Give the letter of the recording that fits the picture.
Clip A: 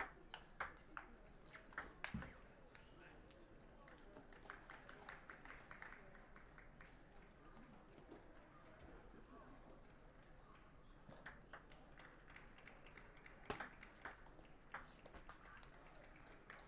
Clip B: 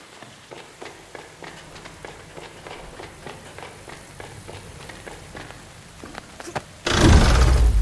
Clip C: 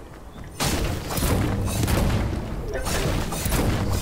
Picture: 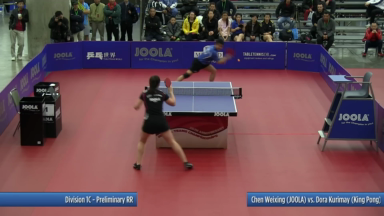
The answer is A